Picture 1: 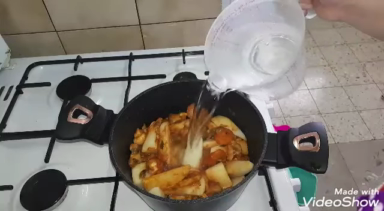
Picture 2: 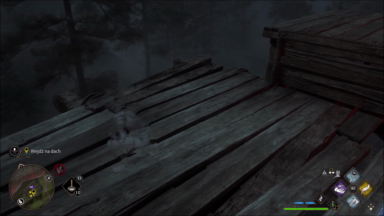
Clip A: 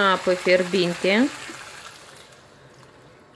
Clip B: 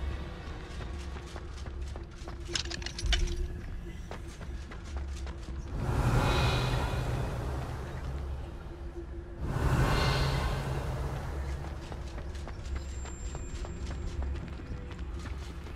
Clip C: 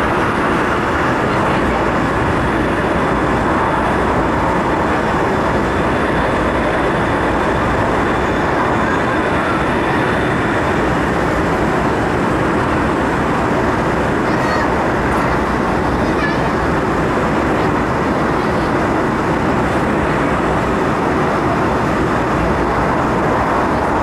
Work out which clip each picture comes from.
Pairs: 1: A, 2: B